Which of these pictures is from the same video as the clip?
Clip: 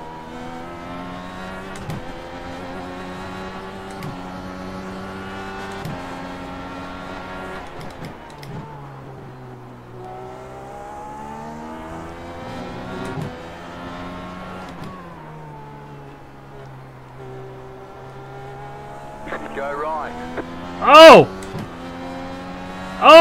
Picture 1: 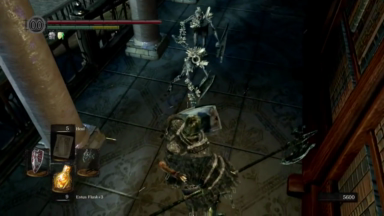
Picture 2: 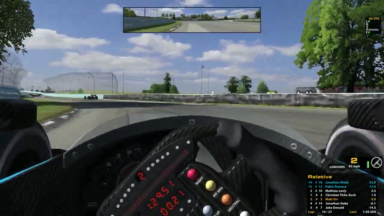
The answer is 2